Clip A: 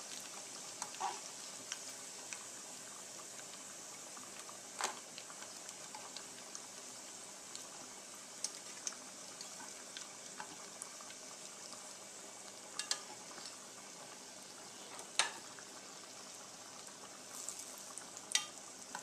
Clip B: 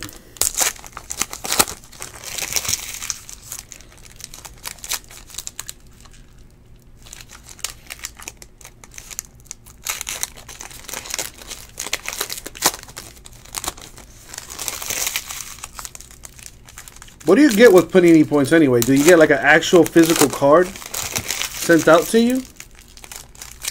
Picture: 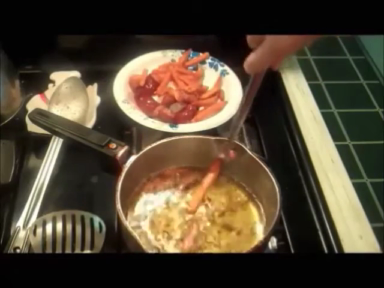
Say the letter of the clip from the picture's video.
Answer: A